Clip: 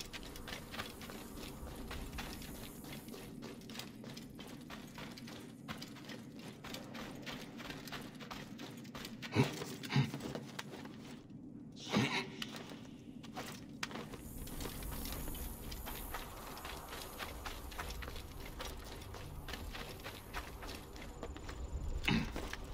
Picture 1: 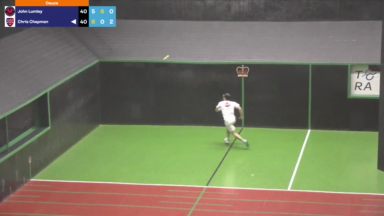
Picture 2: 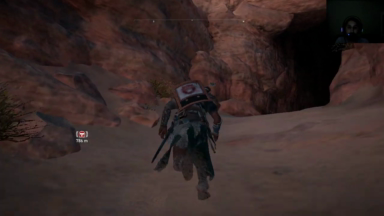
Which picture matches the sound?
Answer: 2